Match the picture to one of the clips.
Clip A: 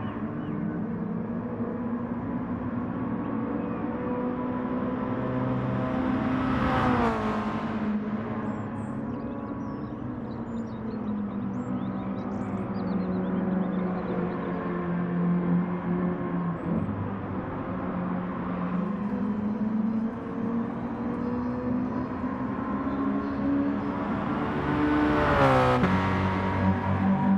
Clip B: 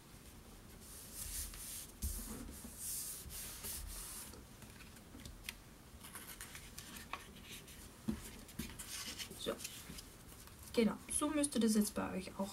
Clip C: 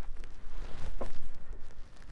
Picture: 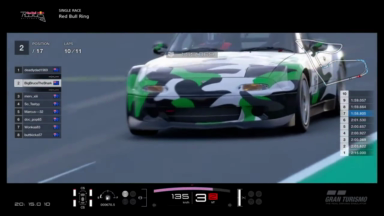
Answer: A